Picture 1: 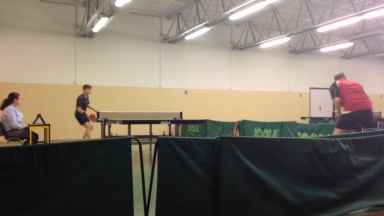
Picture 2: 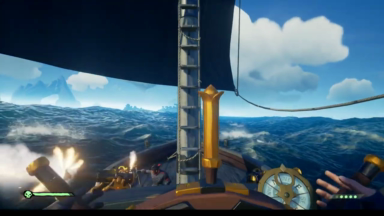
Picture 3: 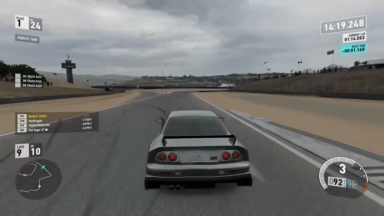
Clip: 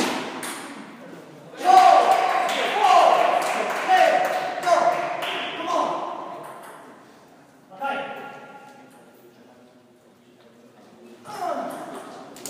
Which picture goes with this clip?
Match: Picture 1